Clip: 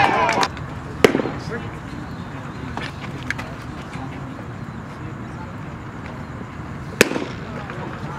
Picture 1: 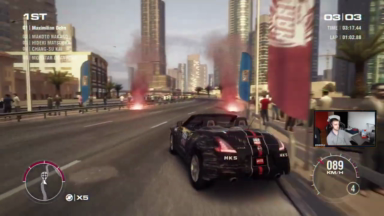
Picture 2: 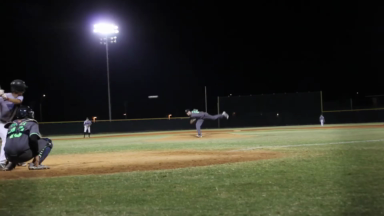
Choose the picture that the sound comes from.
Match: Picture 2